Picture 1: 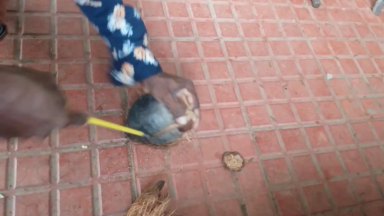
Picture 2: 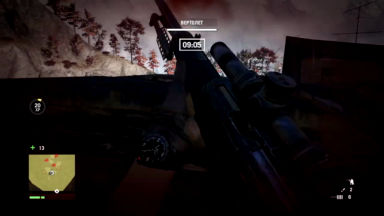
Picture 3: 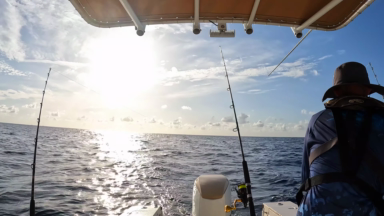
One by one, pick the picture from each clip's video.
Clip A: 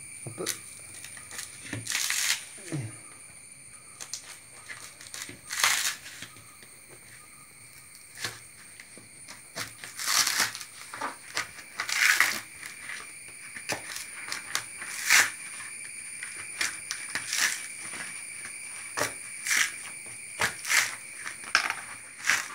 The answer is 1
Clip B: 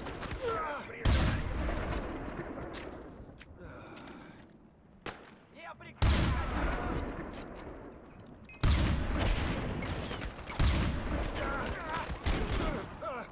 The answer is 2